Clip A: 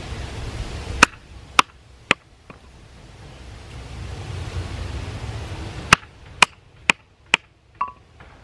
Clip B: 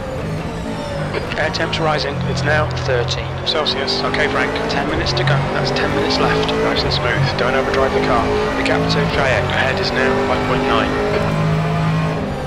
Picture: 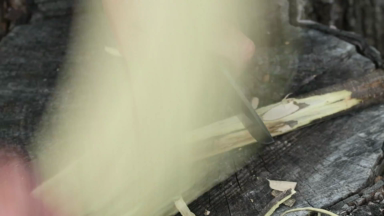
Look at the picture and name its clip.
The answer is A